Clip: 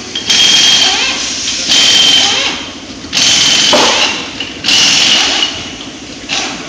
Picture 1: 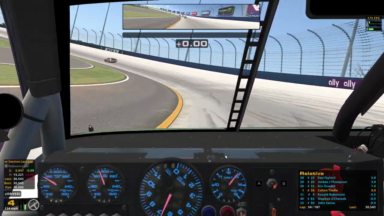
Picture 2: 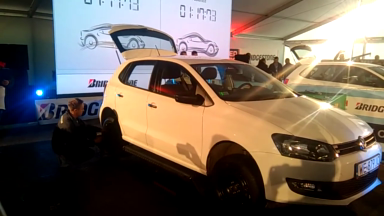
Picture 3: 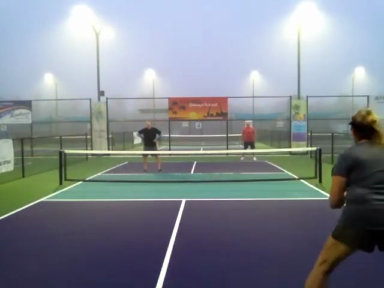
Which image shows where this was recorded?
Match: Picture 2